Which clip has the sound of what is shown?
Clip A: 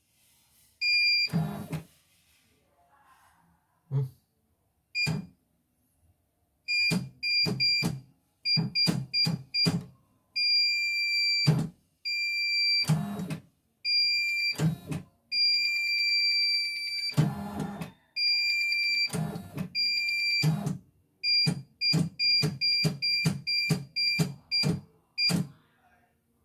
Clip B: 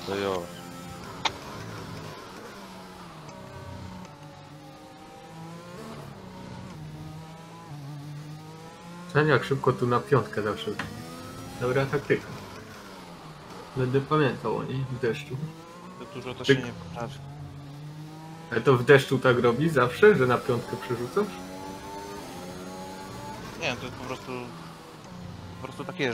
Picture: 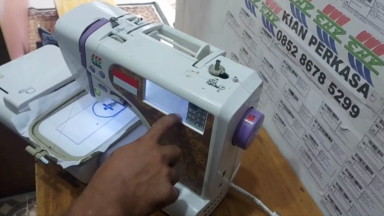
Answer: A